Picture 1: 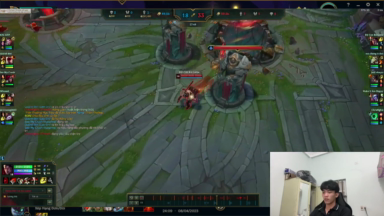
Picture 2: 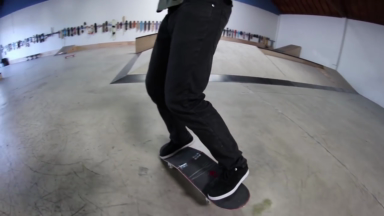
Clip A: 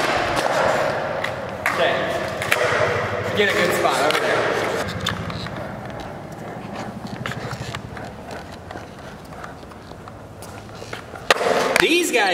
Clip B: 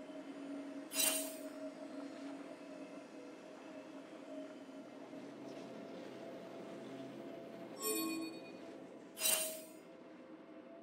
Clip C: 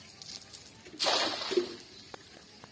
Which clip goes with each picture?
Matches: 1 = B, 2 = A